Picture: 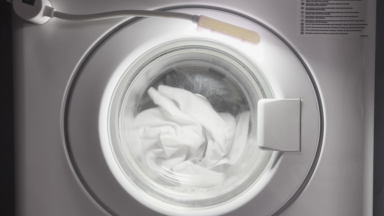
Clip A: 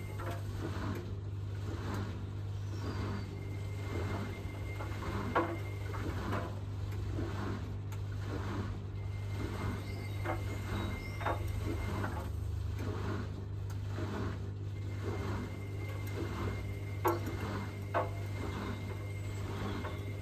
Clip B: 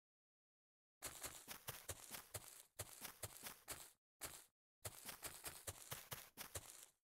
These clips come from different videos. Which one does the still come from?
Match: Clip A